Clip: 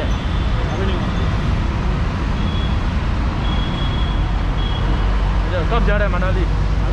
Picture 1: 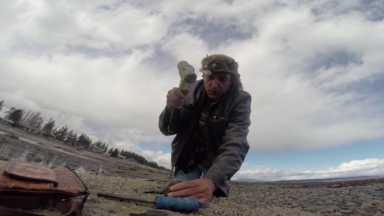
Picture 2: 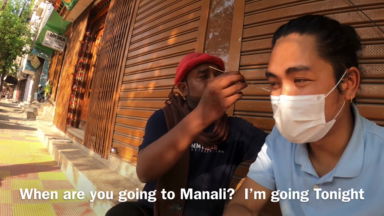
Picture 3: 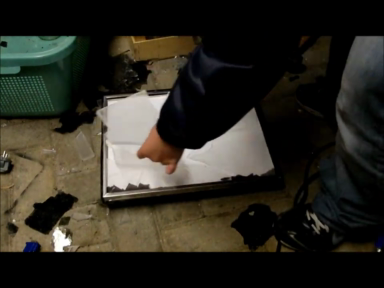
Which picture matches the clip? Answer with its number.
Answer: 2